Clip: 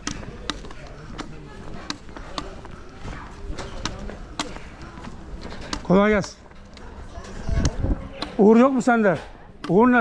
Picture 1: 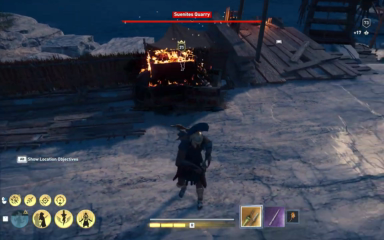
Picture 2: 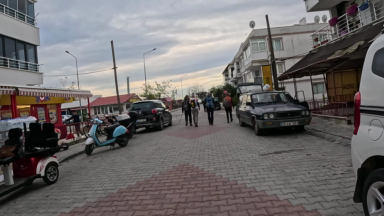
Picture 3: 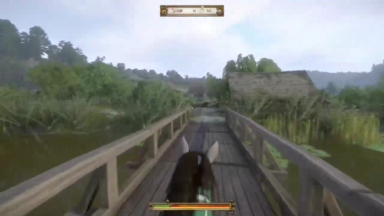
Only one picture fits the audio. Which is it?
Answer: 2